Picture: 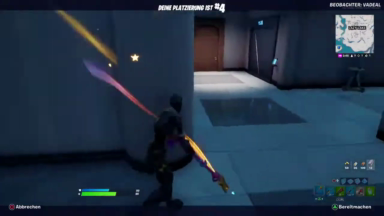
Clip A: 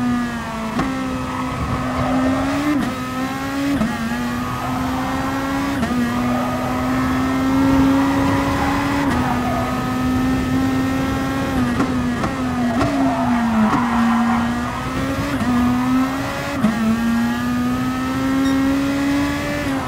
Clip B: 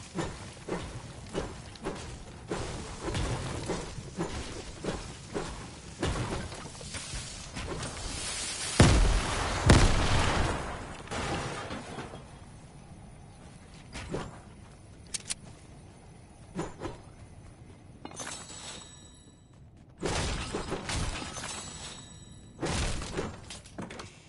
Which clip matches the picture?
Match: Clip B